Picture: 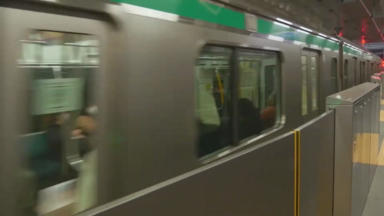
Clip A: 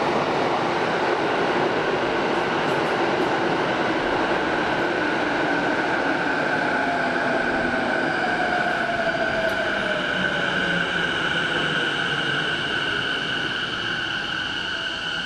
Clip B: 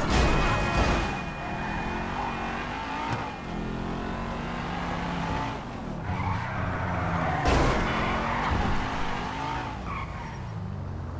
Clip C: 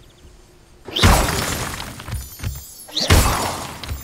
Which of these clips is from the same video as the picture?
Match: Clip A